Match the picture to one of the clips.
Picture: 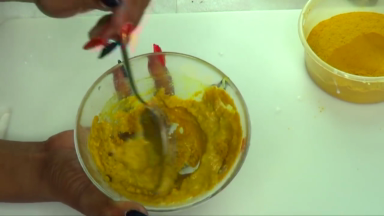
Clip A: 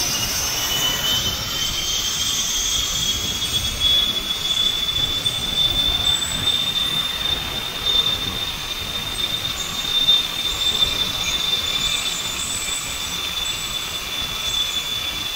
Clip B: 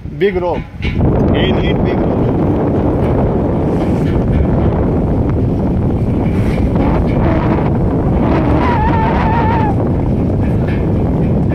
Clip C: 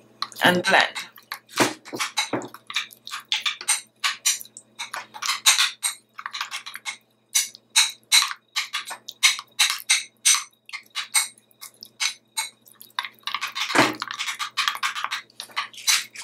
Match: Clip C